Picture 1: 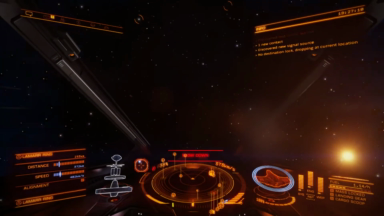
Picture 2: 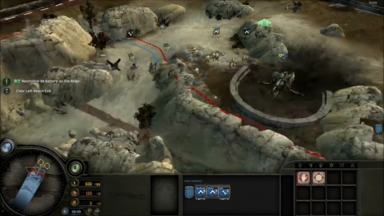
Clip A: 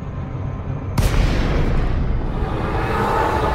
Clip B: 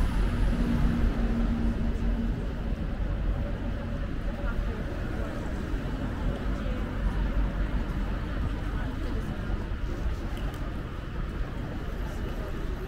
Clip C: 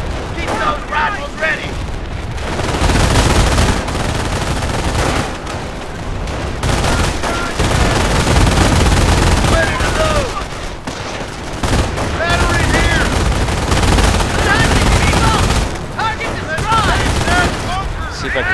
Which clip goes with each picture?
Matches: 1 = A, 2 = C